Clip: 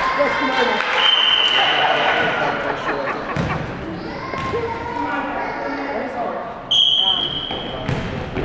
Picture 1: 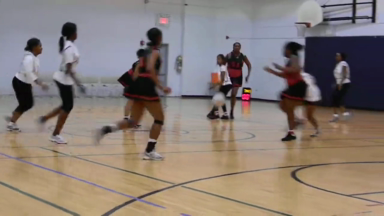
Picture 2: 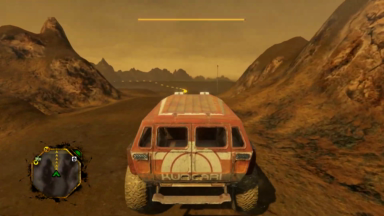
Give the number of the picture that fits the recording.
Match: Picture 1